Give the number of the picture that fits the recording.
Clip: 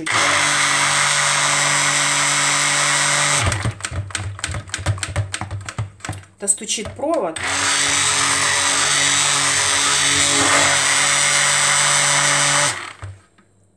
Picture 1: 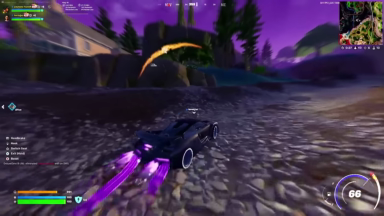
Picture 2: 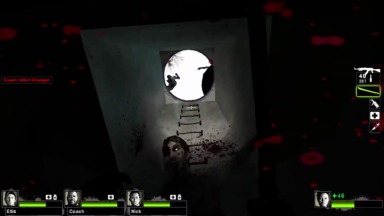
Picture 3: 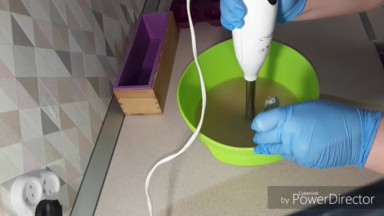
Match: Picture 3